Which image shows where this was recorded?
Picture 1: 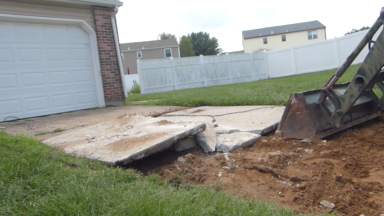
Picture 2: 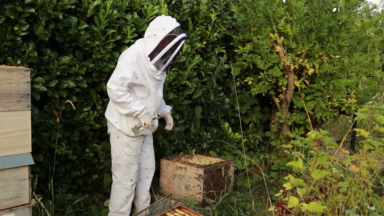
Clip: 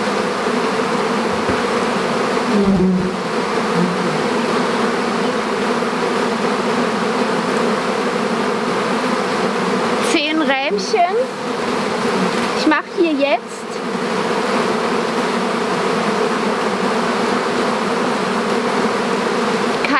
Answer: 2